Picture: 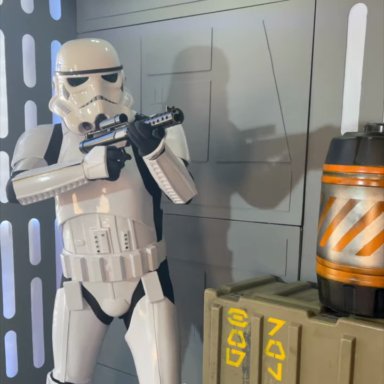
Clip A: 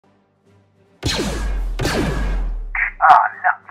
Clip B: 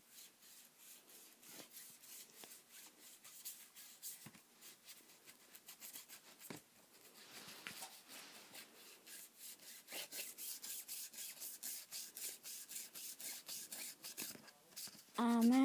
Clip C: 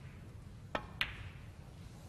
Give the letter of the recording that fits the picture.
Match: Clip A